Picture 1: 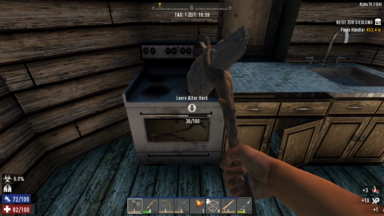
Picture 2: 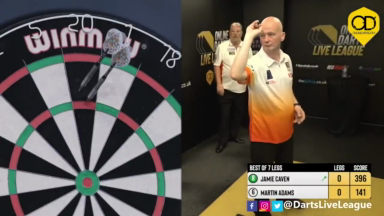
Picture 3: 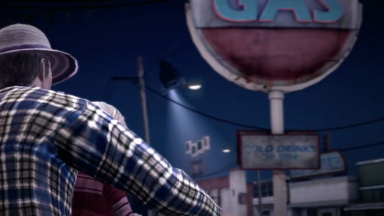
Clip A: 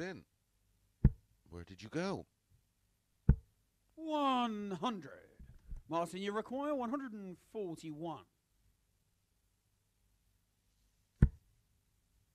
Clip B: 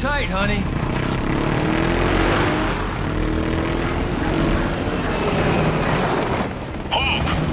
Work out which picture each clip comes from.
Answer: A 2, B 3